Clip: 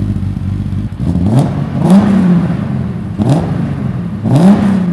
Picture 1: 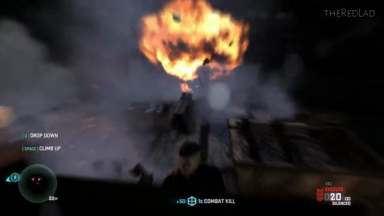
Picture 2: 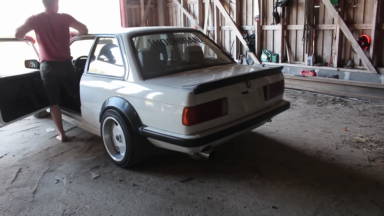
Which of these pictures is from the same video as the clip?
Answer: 2